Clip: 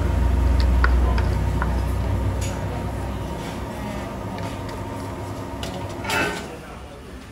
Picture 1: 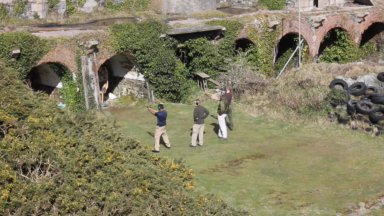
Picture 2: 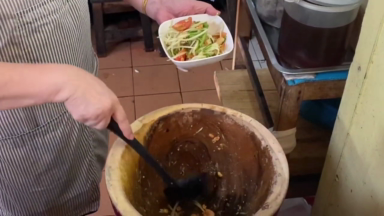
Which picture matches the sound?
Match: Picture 2